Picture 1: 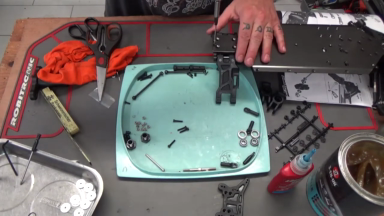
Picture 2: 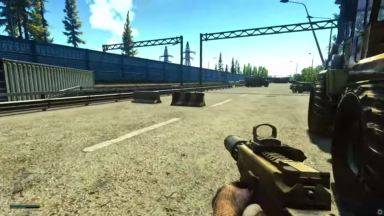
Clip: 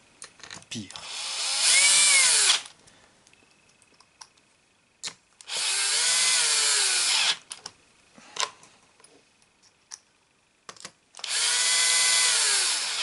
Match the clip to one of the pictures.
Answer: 1